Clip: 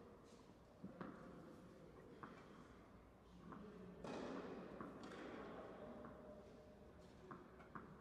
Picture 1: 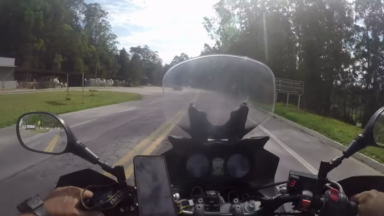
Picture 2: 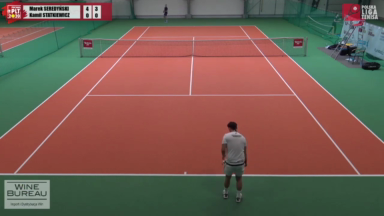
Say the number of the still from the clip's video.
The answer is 2